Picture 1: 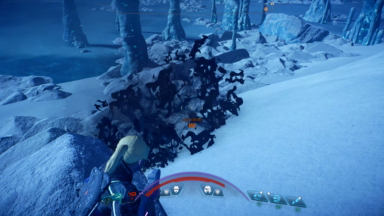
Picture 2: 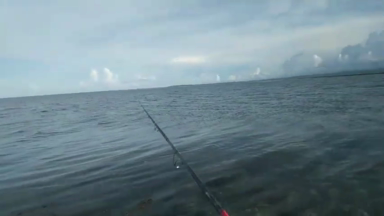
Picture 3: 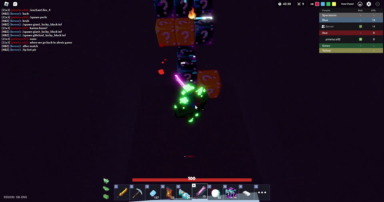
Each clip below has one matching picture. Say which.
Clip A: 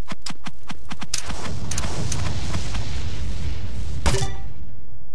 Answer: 3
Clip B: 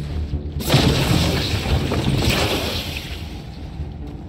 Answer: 1